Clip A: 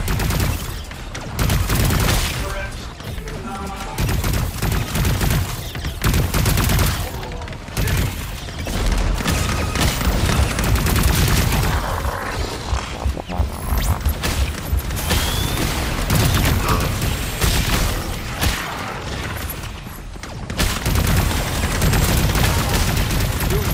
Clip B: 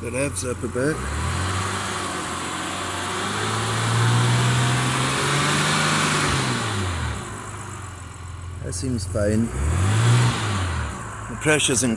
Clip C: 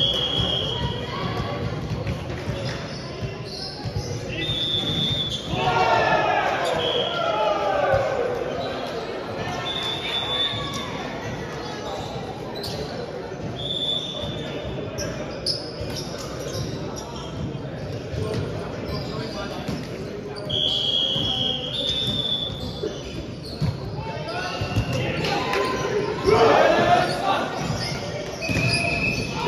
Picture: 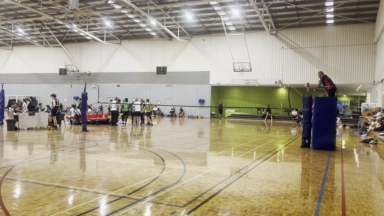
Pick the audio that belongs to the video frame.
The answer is C